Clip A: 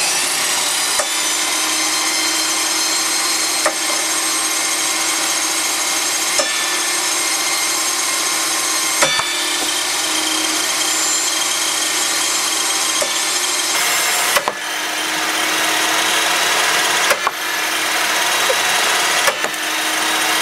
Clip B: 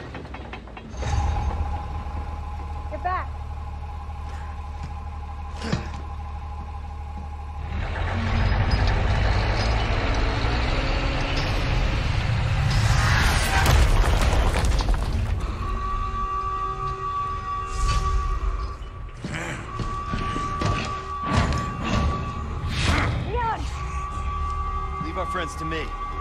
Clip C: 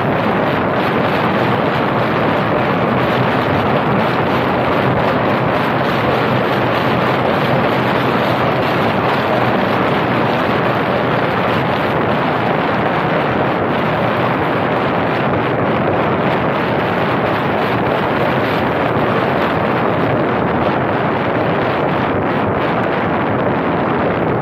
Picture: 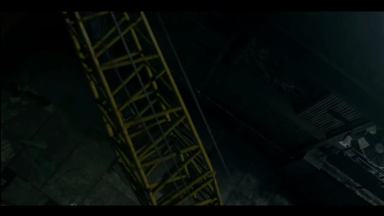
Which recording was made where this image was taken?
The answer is B